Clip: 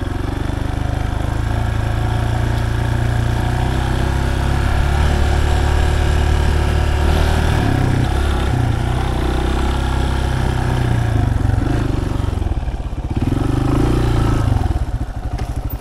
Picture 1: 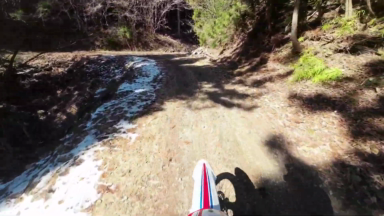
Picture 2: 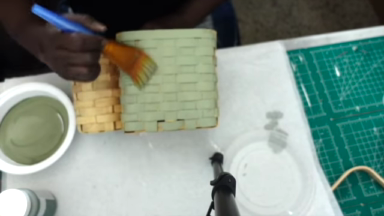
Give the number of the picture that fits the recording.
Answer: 1